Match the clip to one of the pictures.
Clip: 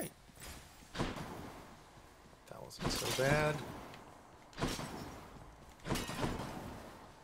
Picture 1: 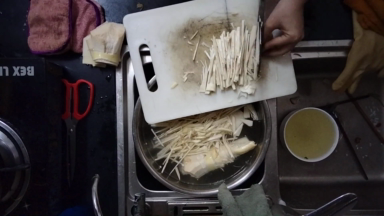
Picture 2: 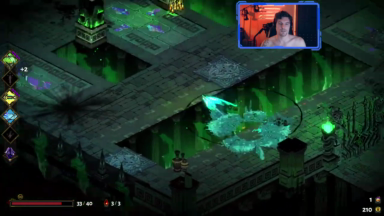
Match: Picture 2